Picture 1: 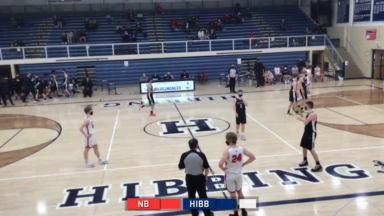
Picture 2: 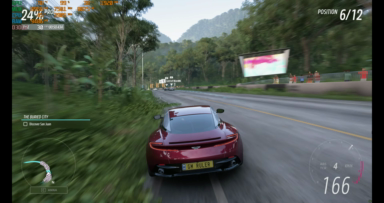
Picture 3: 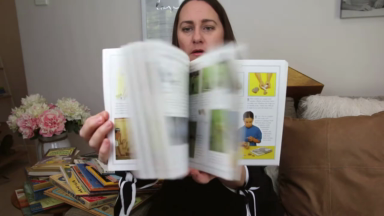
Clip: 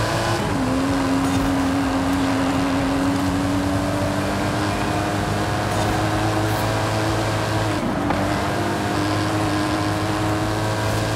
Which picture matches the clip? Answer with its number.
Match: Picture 2